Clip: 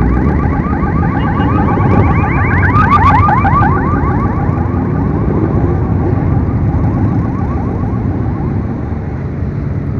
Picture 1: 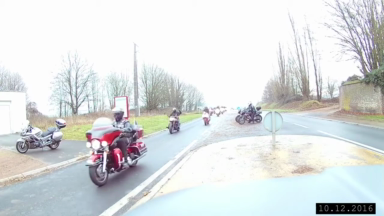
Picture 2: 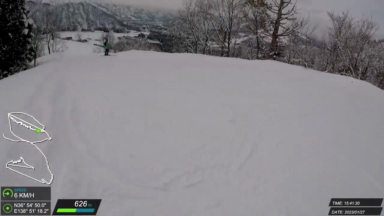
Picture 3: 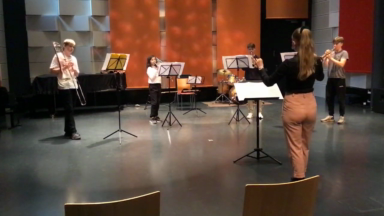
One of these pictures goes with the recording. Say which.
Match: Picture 1